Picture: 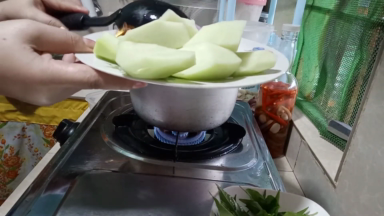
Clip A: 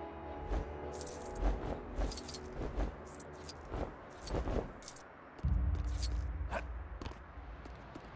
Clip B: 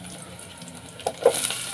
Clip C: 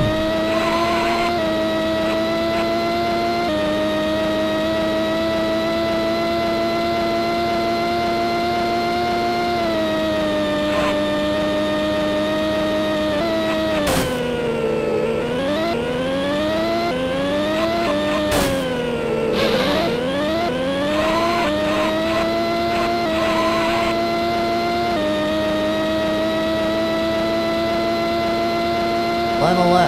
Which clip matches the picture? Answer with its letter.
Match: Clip B